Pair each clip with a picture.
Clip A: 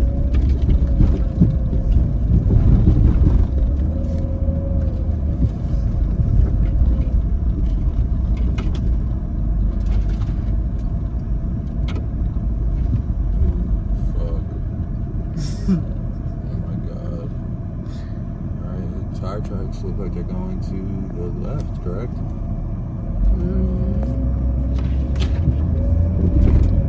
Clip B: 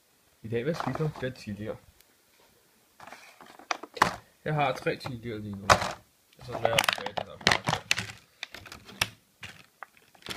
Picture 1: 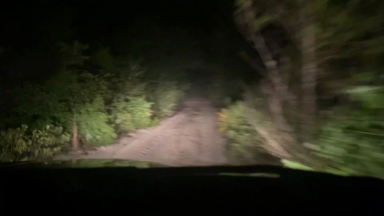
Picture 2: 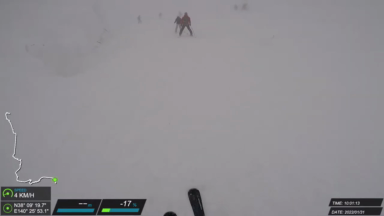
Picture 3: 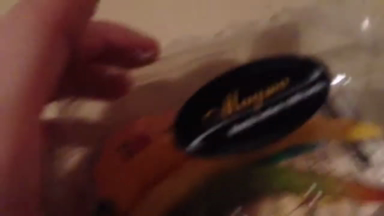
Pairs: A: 1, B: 3